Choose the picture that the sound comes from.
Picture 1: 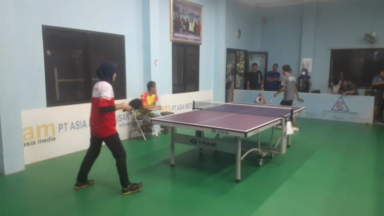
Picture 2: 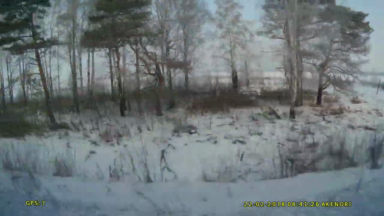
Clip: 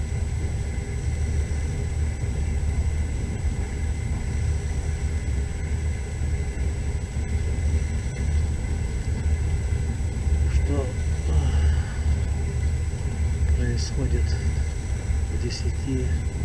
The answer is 2